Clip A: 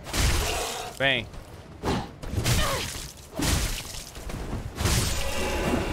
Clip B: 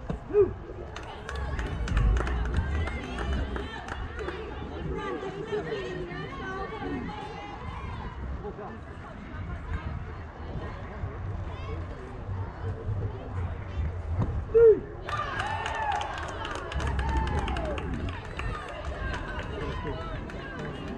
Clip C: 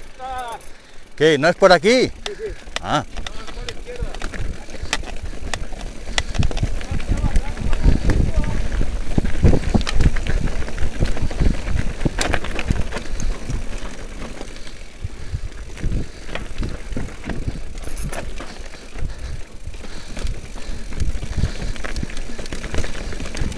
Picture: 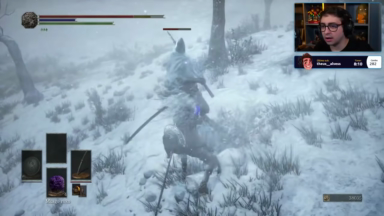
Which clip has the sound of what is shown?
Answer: A